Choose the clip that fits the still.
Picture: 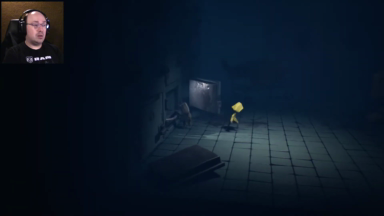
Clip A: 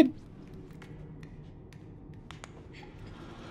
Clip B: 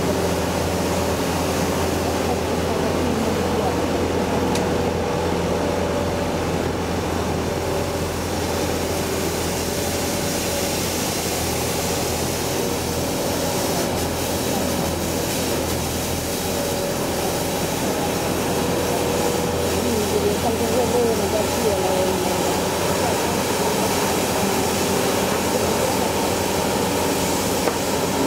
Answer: A